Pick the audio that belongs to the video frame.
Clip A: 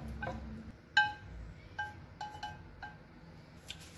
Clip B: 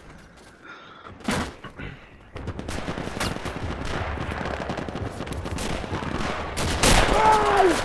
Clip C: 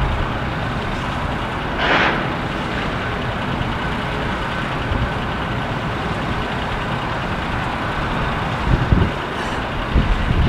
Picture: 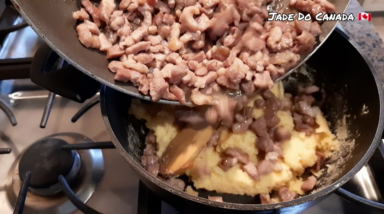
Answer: A